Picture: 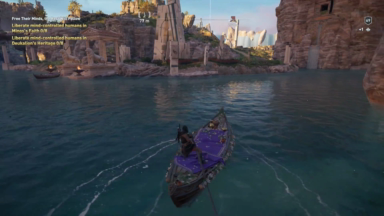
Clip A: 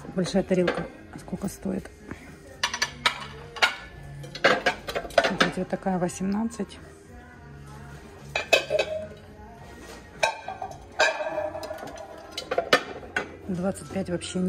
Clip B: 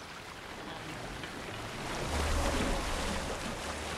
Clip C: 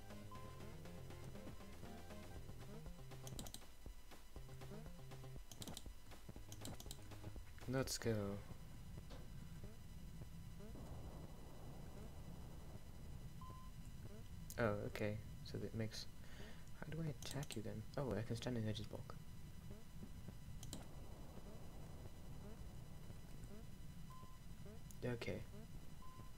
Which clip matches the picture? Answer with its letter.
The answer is B